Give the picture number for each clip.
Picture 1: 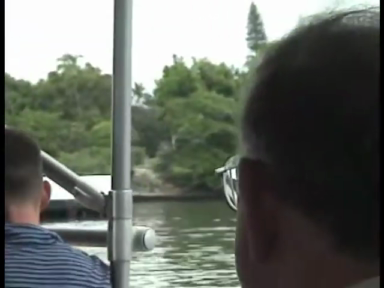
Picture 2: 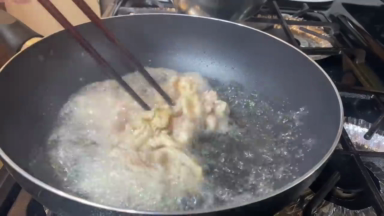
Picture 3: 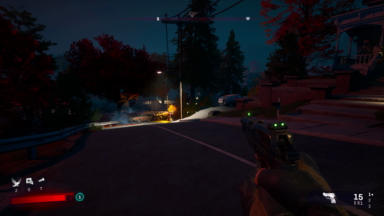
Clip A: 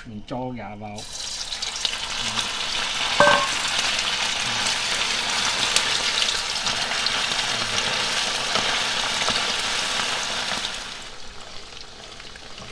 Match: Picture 2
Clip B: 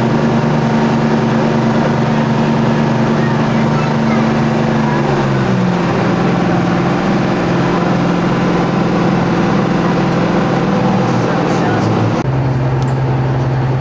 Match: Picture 1